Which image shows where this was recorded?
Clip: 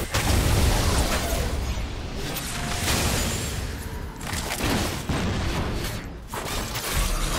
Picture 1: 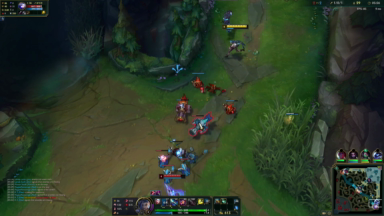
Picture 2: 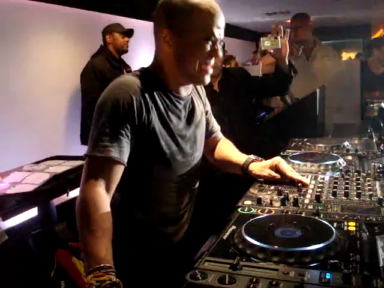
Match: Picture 1